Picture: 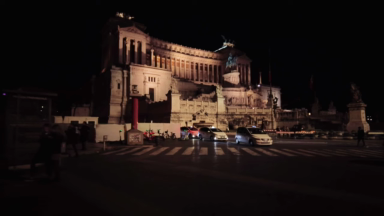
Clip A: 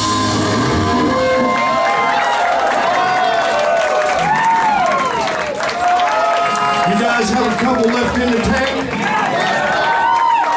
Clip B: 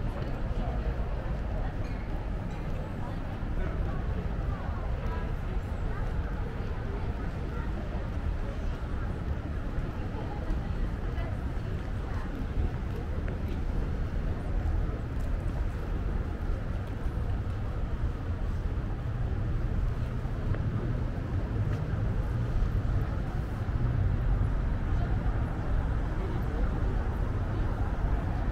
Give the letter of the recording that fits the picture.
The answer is B